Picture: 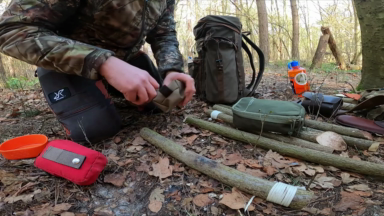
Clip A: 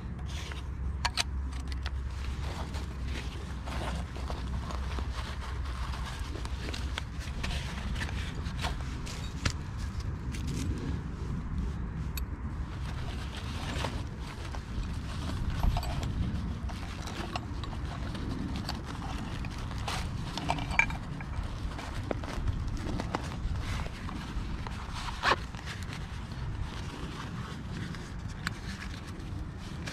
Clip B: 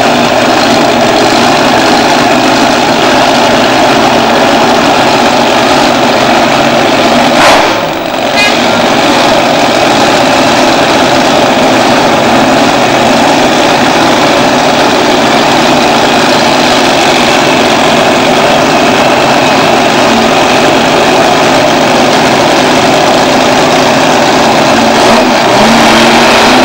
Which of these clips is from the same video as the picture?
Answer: A